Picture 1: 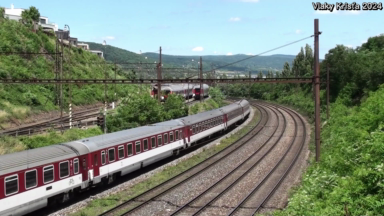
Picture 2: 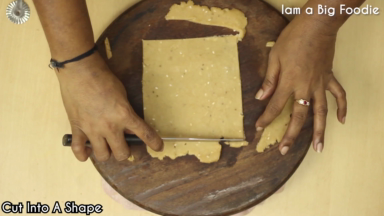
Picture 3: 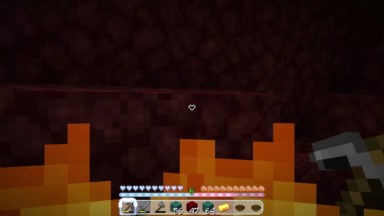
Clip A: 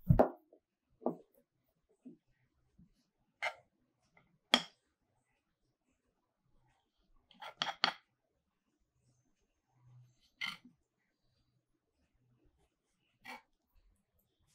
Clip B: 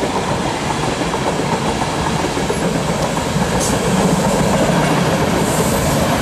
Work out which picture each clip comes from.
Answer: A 2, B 1